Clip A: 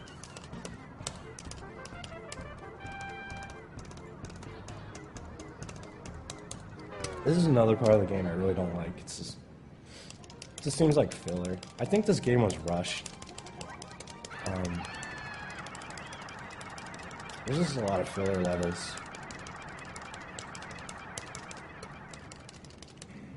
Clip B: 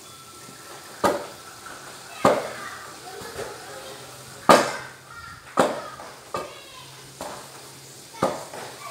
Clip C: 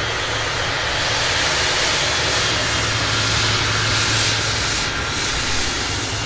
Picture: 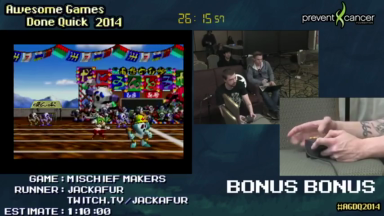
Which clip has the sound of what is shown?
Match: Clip A